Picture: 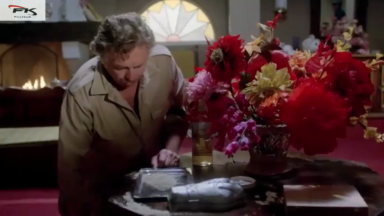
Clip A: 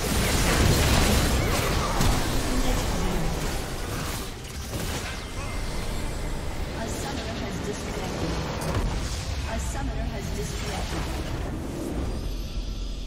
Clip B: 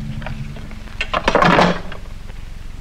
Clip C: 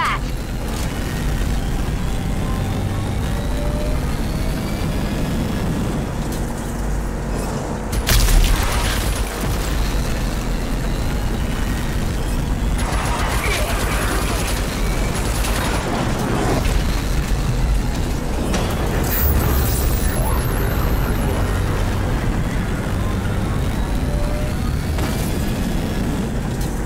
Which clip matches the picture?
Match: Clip B